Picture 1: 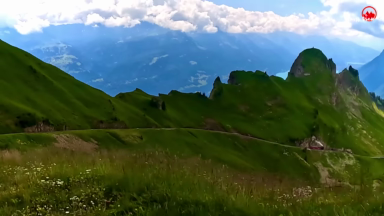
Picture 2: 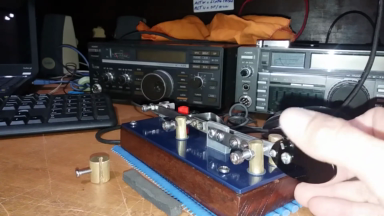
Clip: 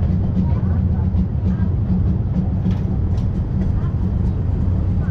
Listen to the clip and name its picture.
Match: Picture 1